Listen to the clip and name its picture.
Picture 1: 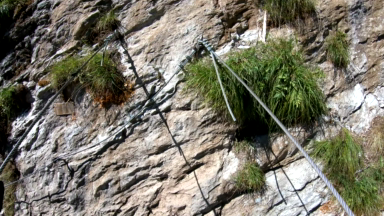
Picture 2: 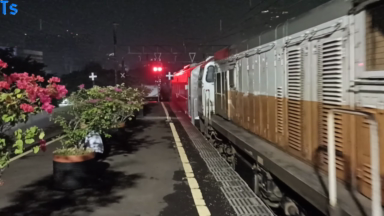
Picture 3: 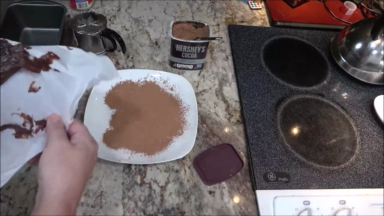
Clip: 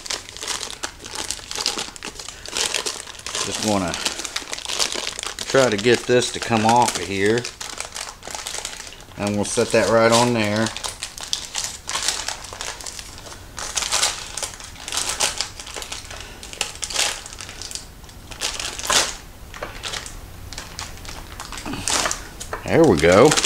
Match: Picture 3